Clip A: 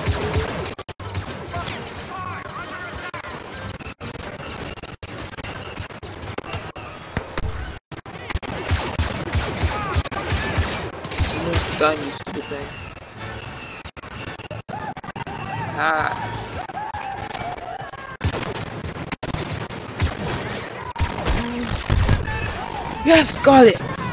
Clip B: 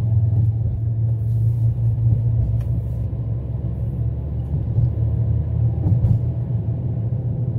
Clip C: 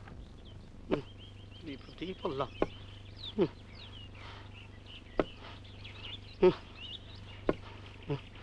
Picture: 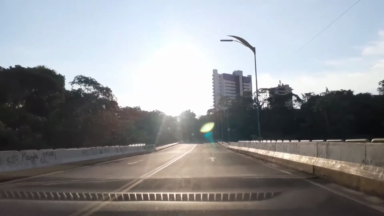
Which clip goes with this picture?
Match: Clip B